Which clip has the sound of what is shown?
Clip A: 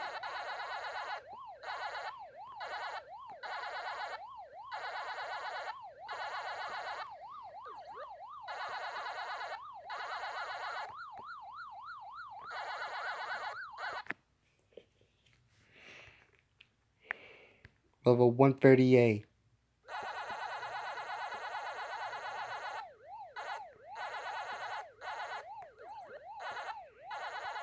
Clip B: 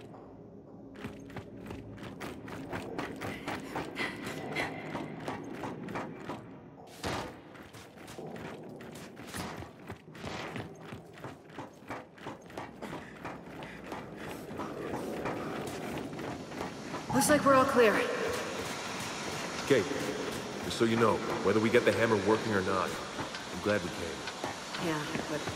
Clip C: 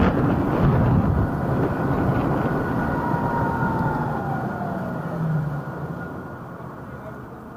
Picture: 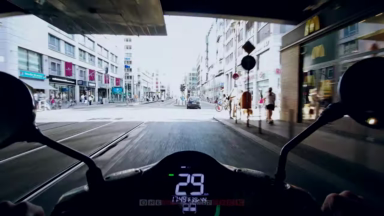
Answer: C